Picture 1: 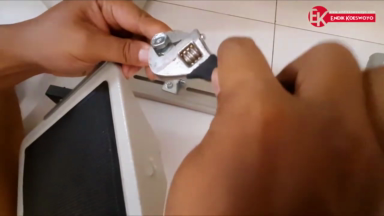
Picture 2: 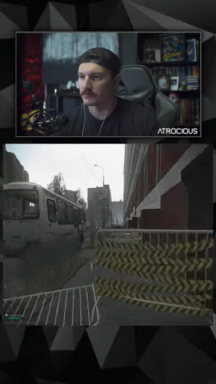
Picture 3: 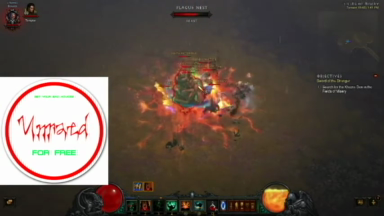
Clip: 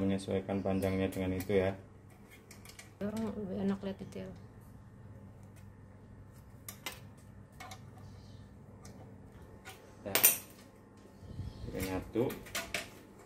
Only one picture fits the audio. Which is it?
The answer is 1